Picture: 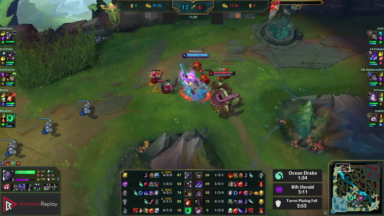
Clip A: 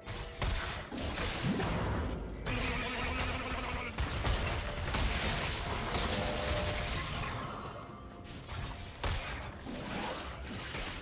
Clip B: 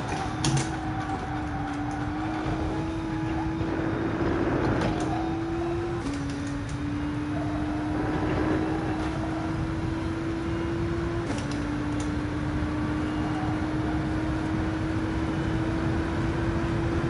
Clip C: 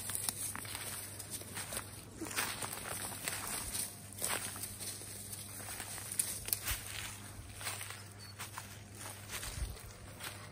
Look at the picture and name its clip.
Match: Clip A